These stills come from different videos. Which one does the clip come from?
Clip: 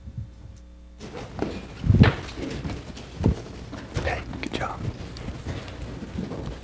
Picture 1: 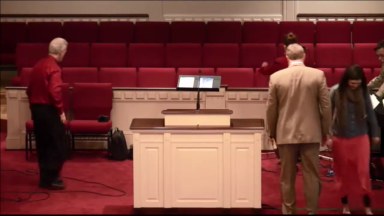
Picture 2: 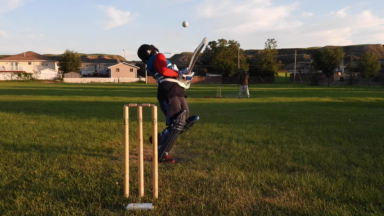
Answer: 1